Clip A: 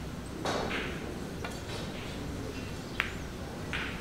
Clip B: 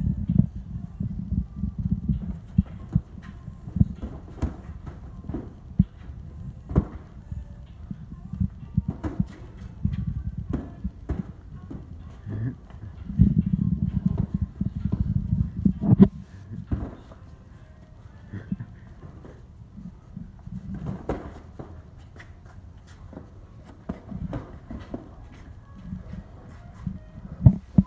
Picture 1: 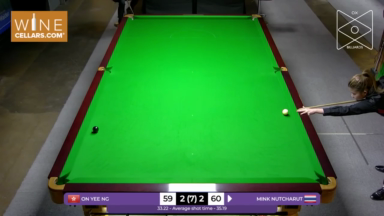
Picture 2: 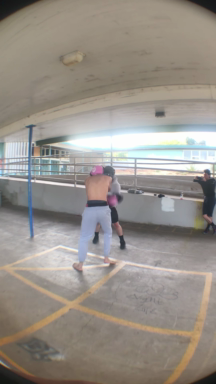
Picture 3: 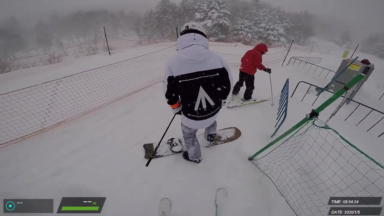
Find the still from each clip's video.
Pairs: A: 1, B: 2